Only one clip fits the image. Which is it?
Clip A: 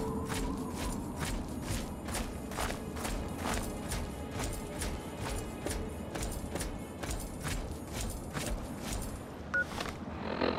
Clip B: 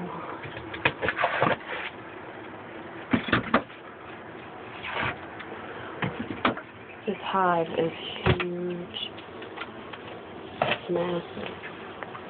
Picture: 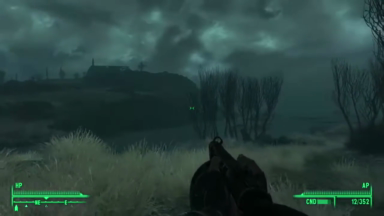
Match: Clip A